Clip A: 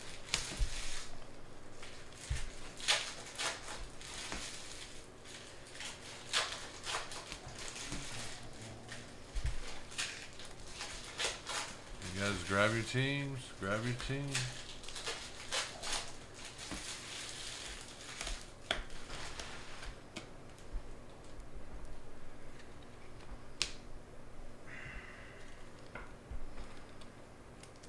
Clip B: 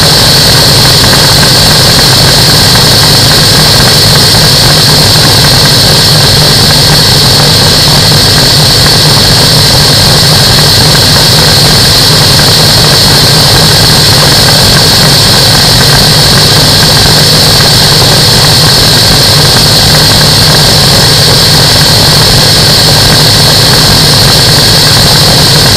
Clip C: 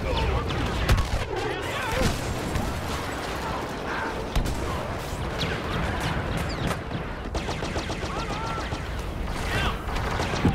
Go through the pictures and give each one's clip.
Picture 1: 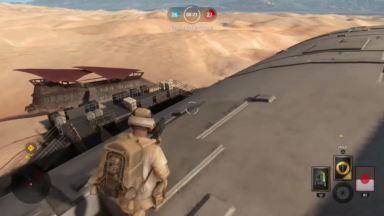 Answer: C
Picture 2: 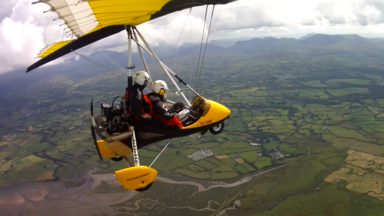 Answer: B